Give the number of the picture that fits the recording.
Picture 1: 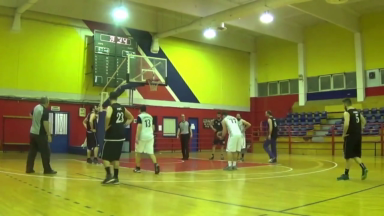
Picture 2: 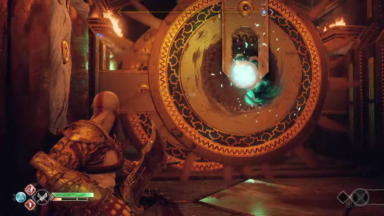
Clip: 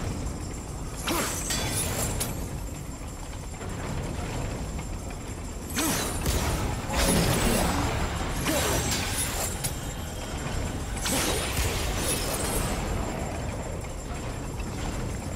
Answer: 2